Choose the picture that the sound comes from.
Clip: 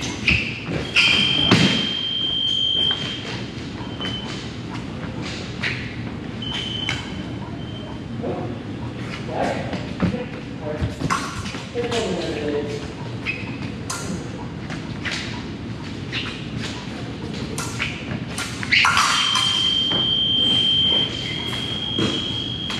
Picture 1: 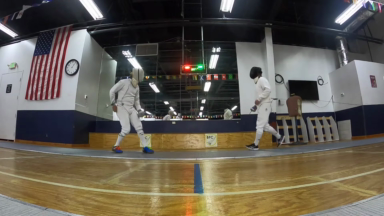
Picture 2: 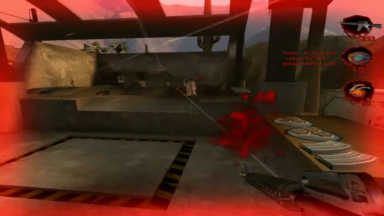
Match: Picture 1